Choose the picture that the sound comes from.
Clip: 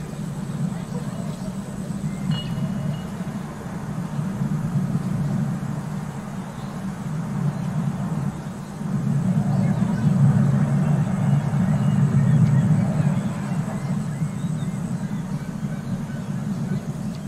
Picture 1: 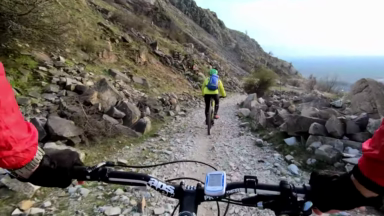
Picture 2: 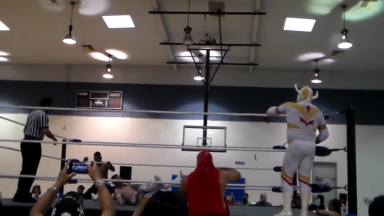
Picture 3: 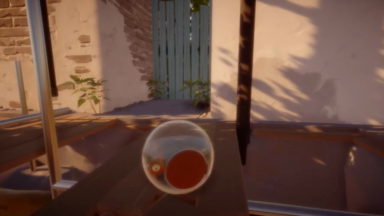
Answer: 3